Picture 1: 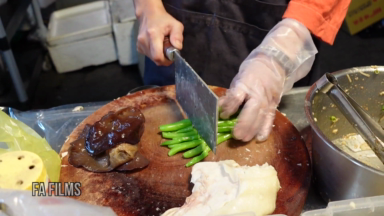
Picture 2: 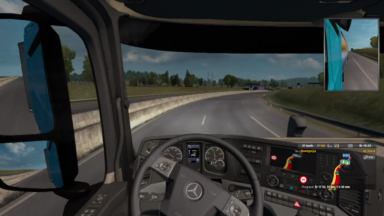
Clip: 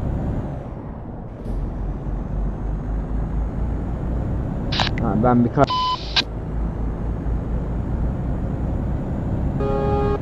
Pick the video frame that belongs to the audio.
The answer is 2